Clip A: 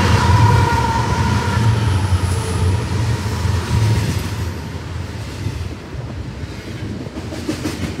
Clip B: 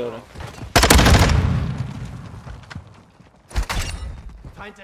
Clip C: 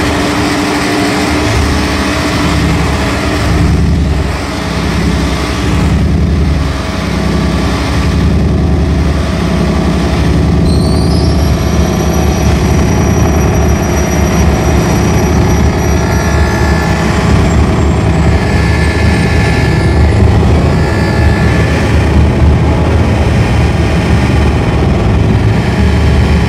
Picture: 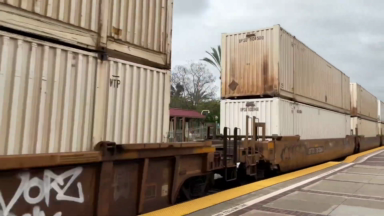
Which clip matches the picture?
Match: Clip A